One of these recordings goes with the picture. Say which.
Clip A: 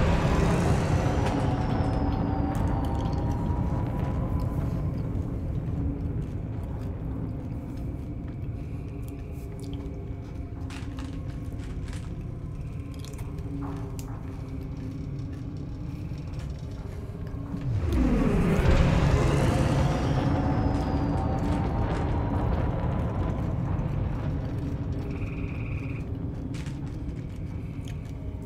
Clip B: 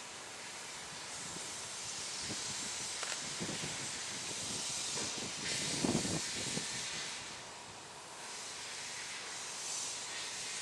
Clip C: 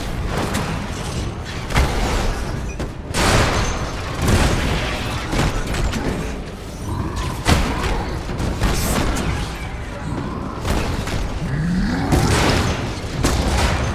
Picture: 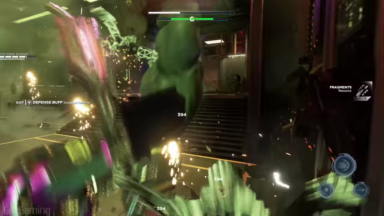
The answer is C